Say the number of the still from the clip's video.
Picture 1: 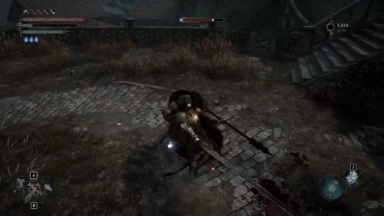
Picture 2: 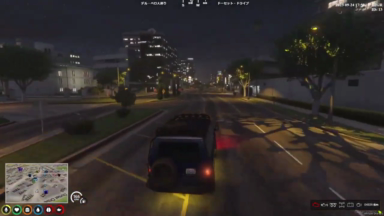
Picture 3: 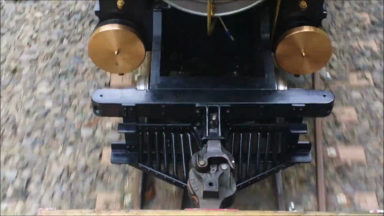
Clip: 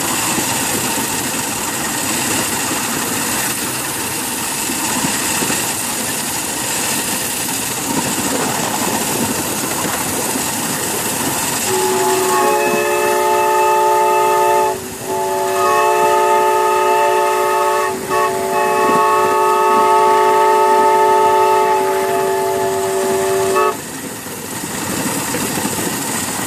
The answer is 3